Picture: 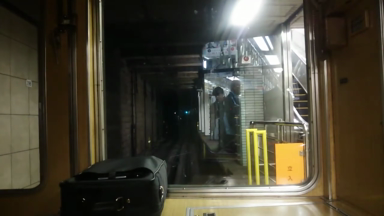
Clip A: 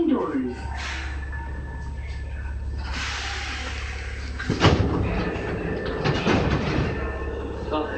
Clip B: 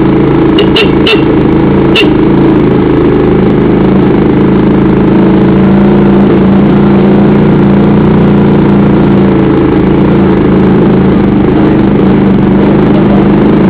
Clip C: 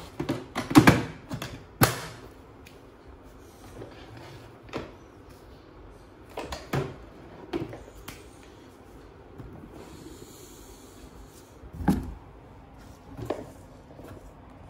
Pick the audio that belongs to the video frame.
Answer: A